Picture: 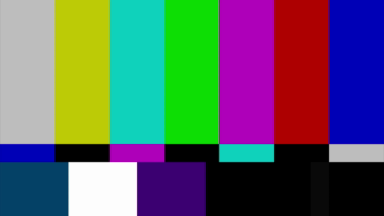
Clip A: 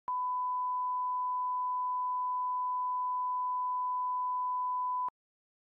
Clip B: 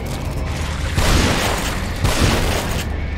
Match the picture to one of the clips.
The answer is A